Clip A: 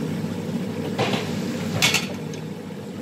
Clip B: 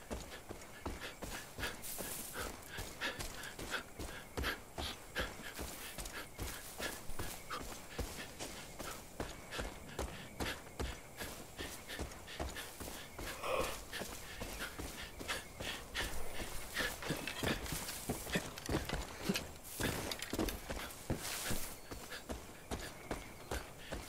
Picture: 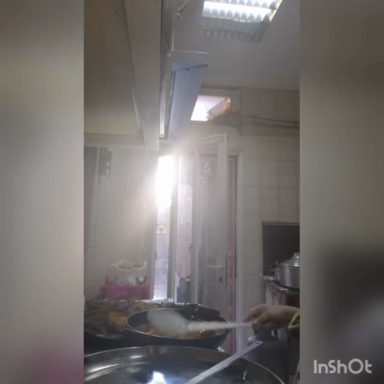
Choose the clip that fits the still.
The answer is A